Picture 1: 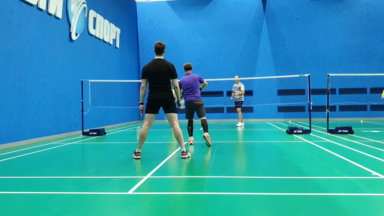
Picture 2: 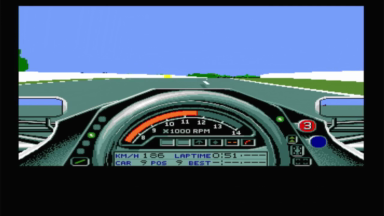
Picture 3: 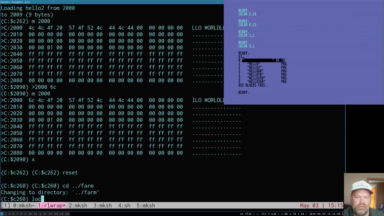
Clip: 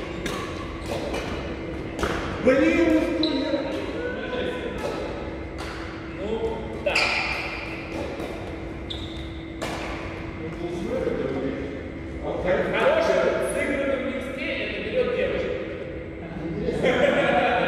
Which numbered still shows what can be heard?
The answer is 1